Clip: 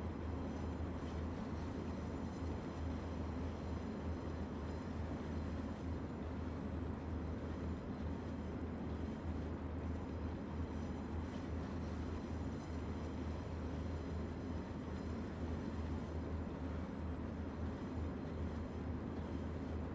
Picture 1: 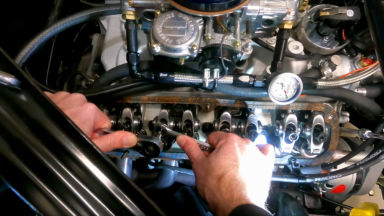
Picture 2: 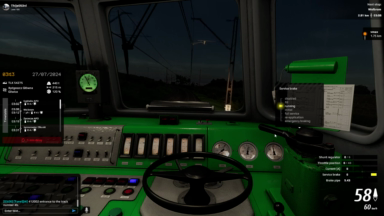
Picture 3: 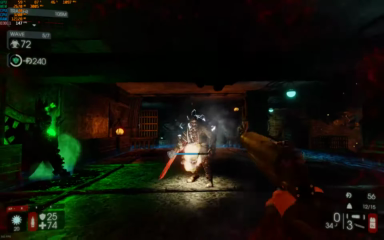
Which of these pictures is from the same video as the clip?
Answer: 2